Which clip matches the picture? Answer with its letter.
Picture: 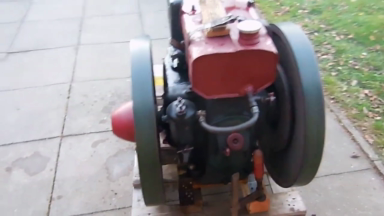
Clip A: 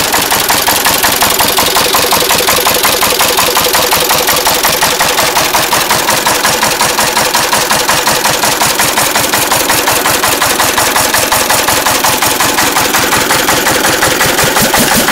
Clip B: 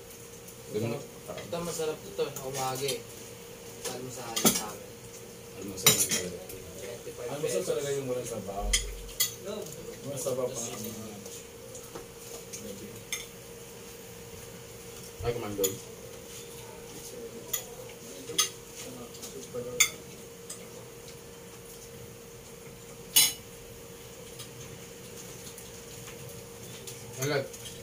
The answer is A